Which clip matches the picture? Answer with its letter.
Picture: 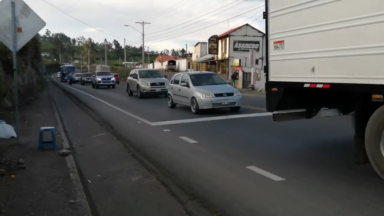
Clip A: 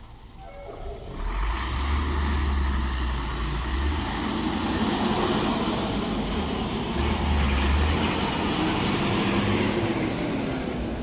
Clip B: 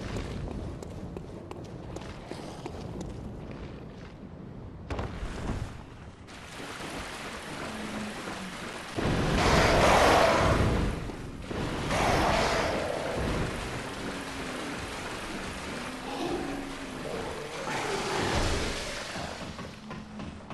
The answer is A